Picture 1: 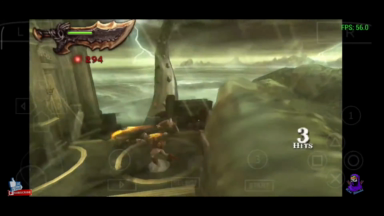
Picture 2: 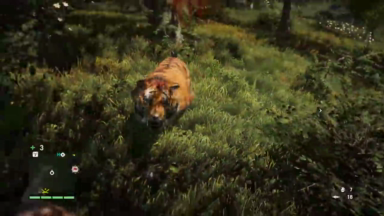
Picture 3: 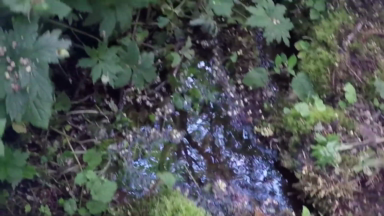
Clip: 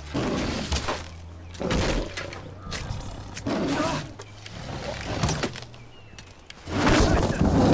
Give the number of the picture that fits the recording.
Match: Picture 2